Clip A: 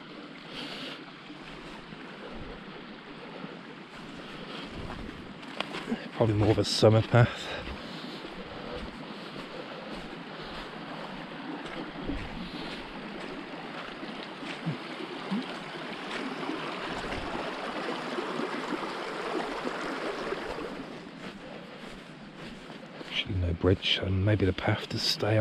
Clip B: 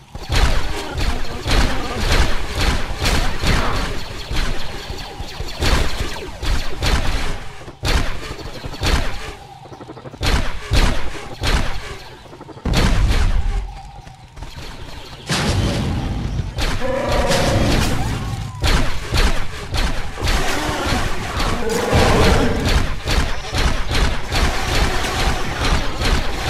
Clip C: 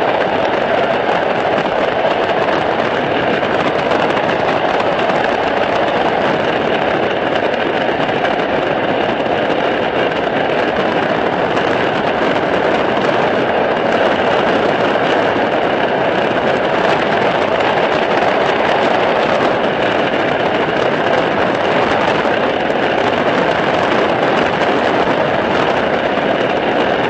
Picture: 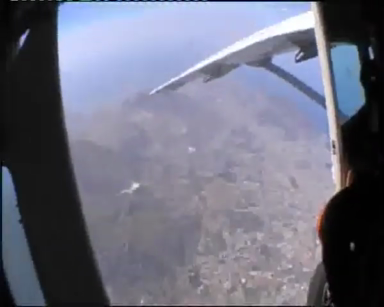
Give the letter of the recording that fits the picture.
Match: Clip C